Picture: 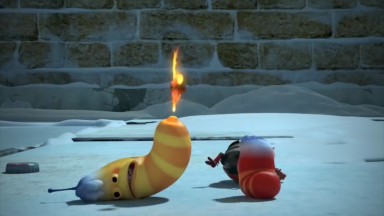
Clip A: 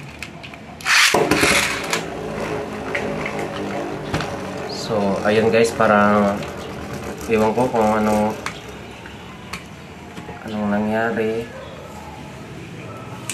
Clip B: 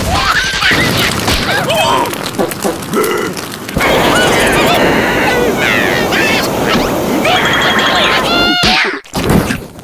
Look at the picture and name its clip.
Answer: B